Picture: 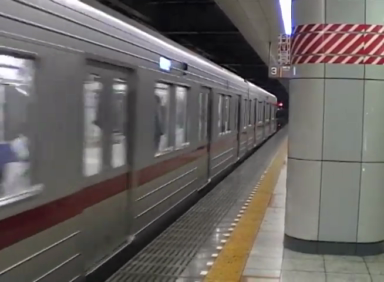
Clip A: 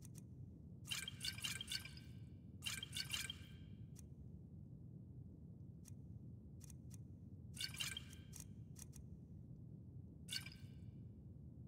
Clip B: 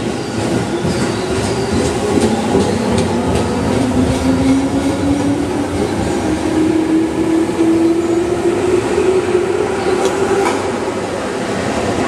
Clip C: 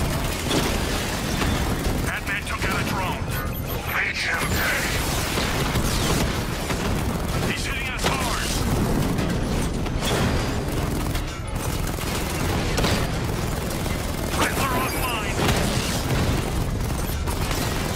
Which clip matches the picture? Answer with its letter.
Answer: B